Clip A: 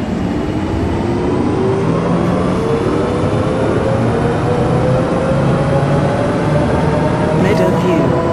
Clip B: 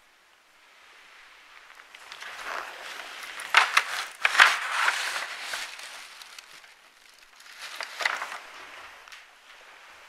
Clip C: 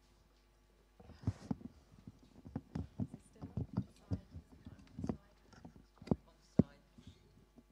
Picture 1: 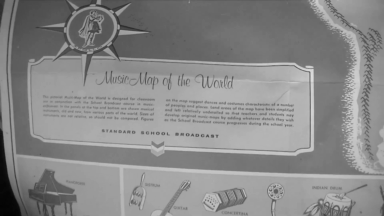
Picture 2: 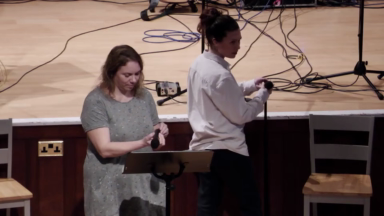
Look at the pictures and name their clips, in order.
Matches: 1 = B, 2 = C